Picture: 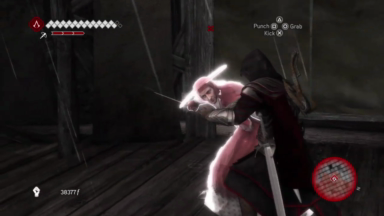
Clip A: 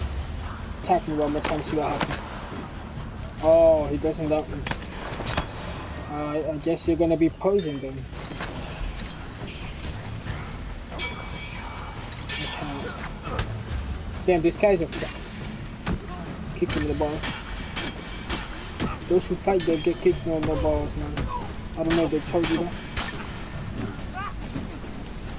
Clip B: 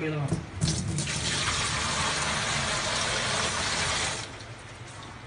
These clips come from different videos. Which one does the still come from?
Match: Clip A